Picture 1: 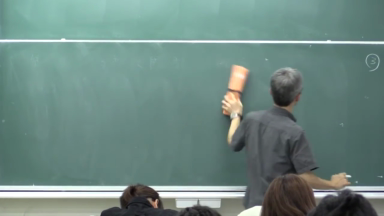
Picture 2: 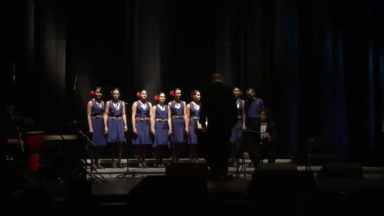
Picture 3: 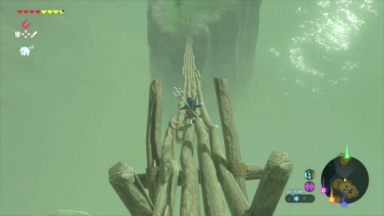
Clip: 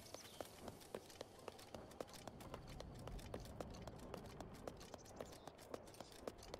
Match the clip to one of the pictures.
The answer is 3